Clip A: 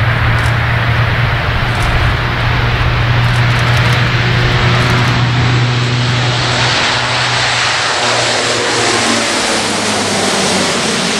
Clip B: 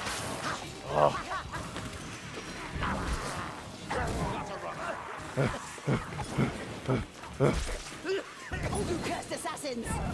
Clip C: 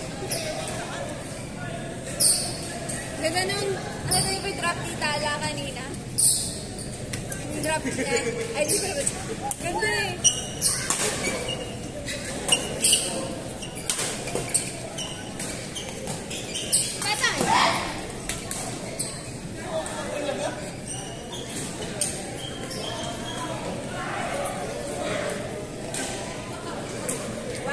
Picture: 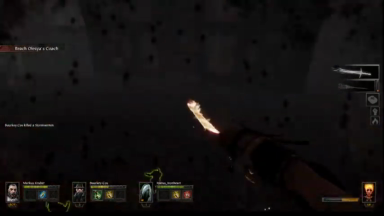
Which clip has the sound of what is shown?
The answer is B